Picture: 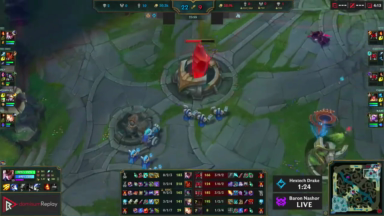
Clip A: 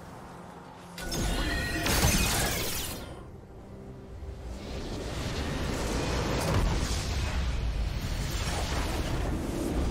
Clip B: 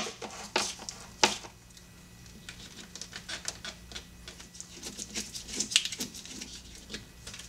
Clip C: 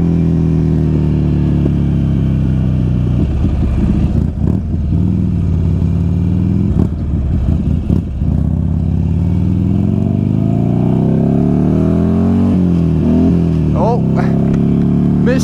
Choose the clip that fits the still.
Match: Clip A